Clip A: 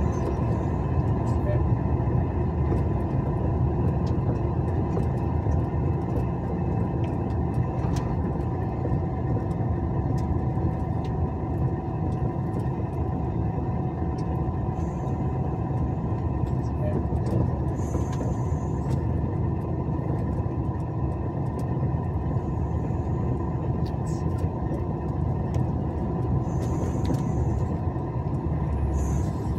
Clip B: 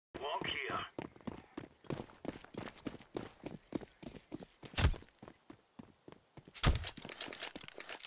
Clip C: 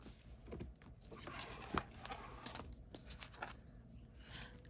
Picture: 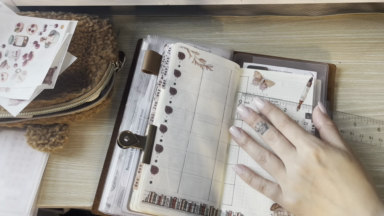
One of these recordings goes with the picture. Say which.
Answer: C